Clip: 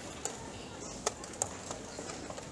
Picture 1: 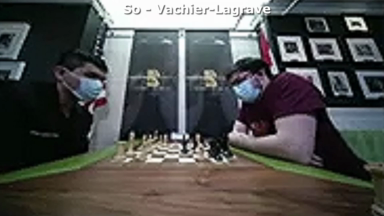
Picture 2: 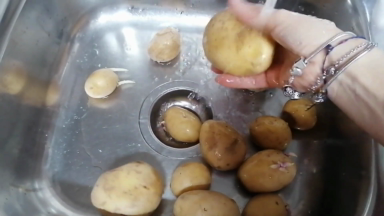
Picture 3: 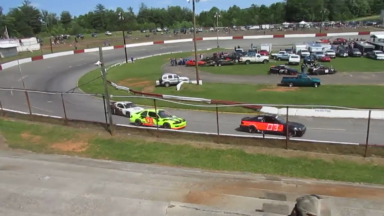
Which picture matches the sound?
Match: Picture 1